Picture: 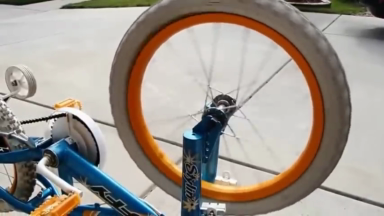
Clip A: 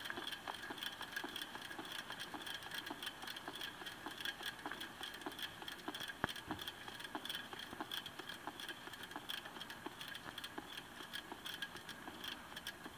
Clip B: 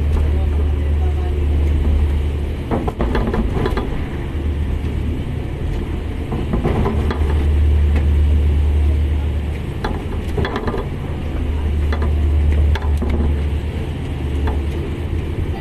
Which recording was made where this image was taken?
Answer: A